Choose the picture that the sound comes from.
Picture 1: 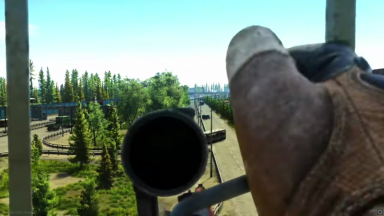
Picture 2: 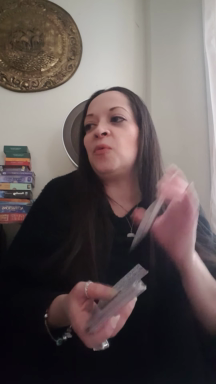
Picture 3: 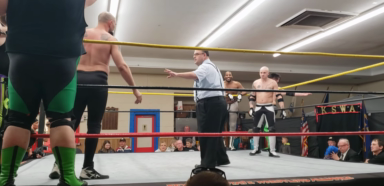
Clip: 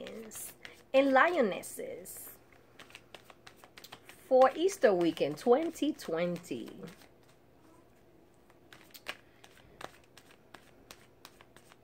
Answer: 2